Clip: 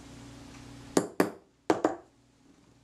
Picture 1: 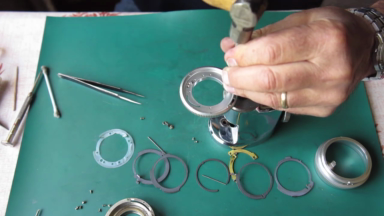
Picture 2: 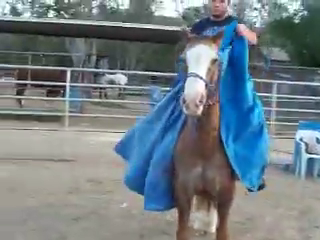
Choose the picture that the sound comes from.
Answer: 1